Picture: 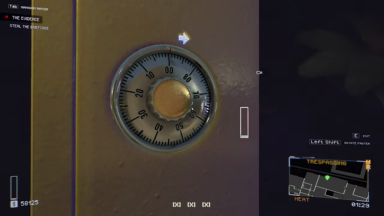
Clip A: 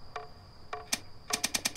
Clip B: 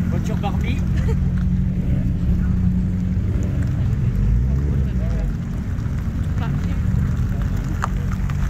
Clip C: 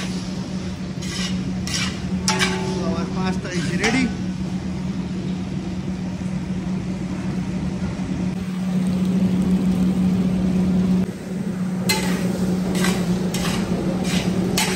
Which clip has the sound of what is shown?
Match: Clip A